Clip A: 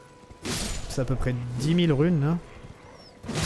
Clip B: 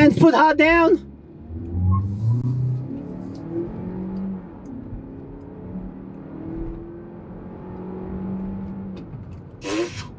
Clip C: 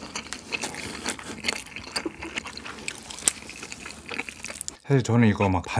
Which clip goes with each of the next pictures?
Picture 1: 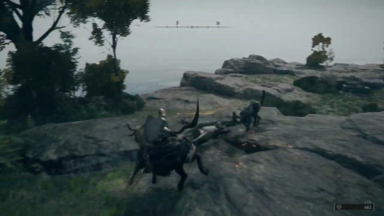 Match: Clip A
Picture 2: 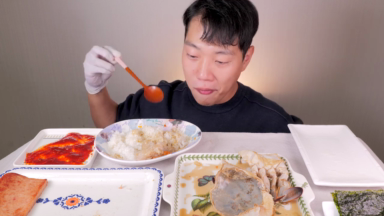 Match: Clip C